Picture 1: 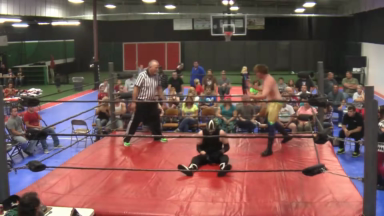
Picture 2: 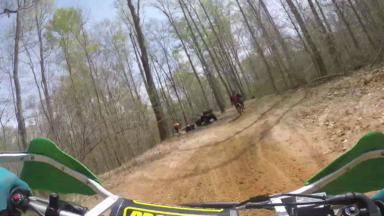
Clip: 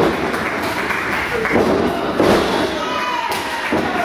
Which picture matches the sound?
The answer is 1